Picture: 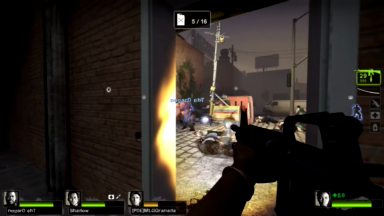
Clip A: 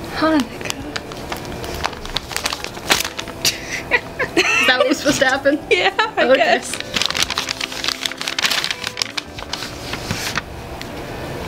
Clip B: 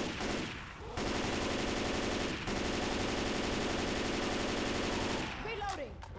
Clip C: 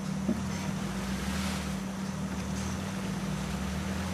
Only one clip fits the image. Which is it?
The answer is B